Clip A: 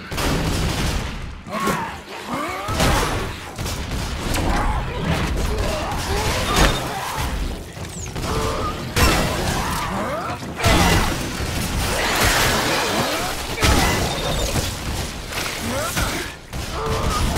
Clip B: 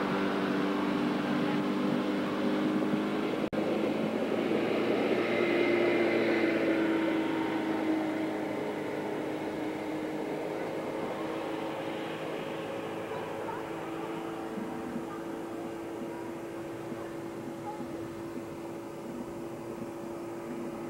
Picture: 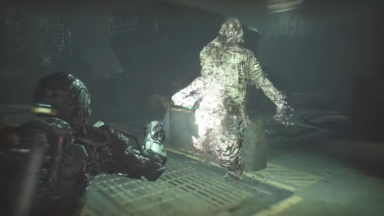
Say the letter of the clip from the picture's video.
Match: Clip A